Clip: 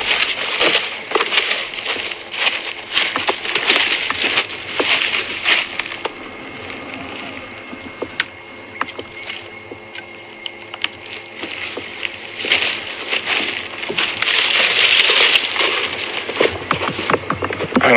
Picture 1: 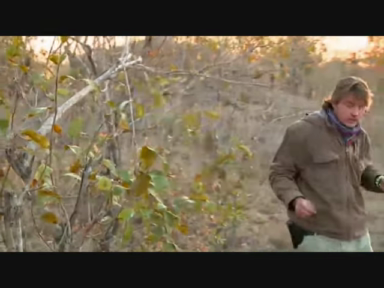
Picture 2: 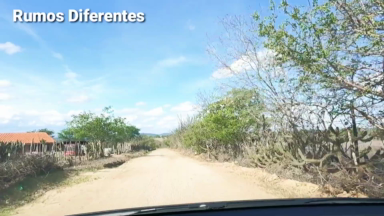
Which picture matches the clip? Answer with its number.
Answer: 1